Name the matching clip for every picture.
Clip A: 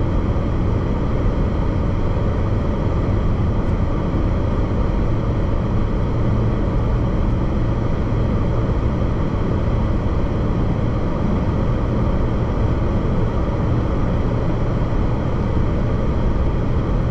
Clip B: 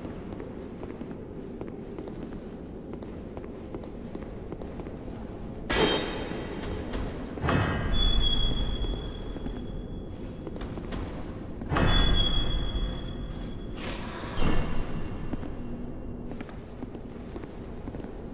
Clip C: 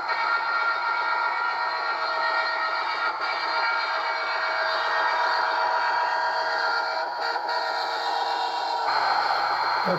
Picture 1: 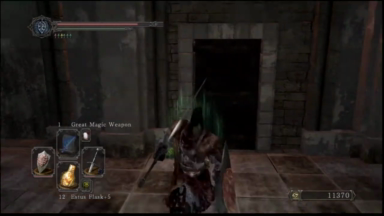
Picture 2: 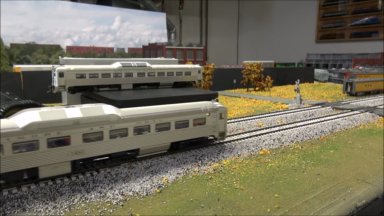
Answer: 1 B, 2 C